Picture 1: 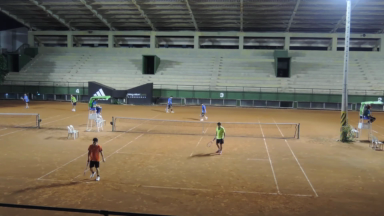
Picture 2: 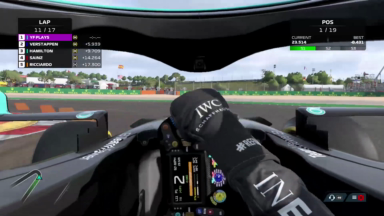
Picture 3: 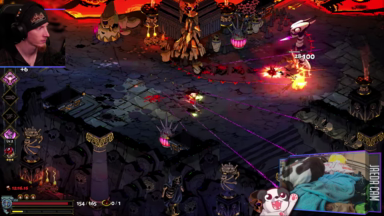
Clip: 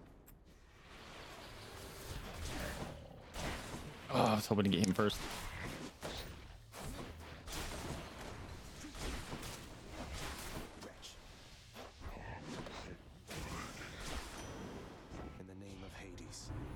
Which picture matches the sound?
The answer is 3